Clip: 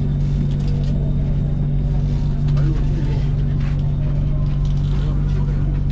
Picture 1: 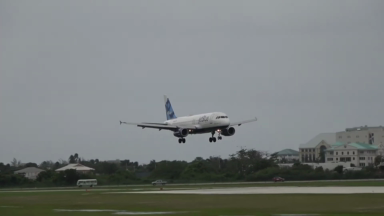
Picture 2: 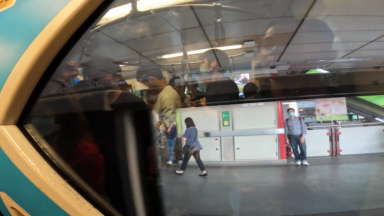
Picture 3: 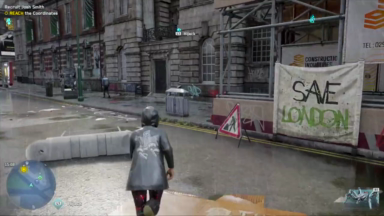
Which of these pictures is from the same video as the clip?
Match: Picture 2